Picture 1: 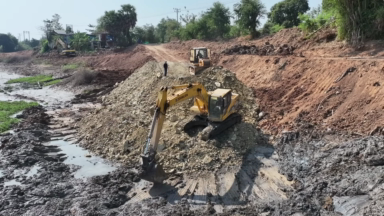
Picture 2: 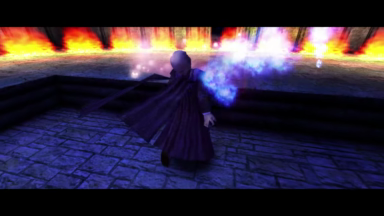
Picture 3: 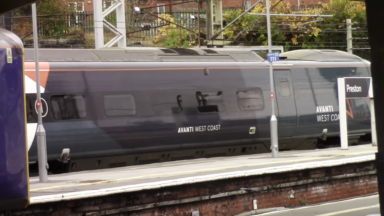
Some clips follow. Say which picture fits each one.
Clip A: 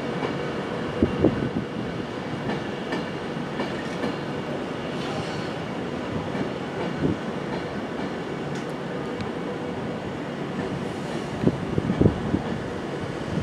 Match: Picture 3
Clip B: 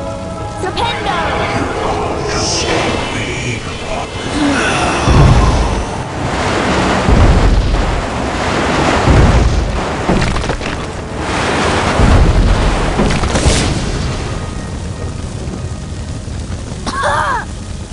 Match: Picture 2